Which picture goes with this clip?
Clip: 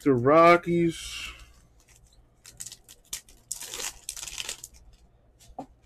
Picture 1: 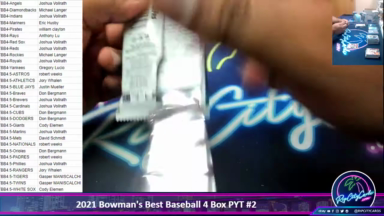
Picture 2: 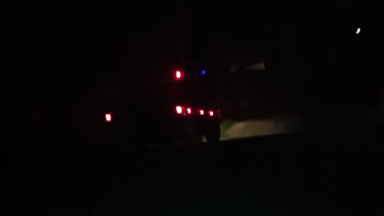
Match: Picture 1